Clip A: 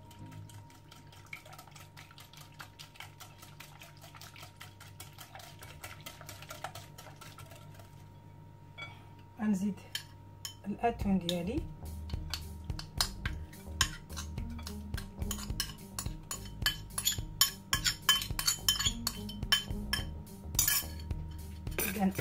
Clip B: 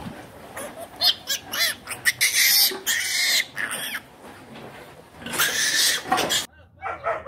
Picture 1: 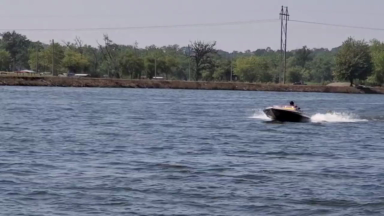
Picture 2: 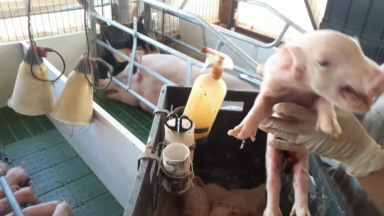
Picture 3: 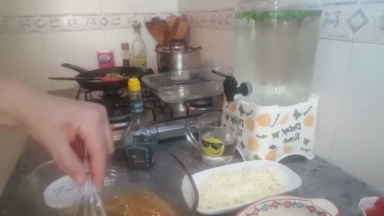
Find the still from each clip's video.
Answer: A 3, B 2